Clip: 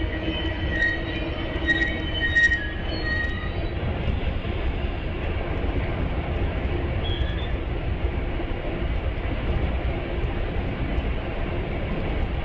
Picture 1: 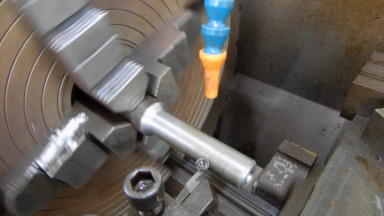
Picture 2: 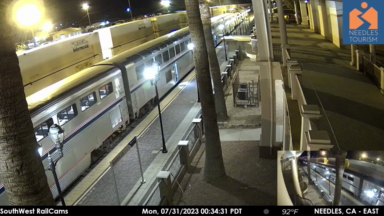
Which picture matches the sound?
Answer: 2